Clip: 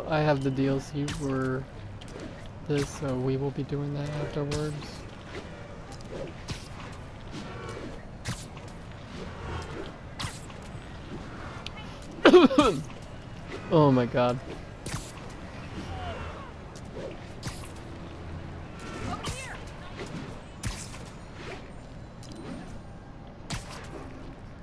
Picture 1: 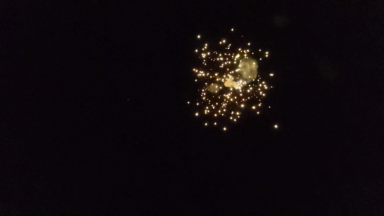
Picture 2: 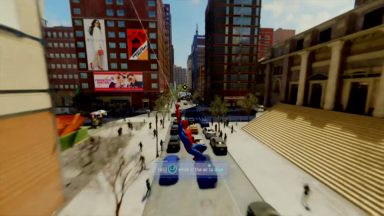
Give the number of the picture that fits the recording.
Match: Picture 2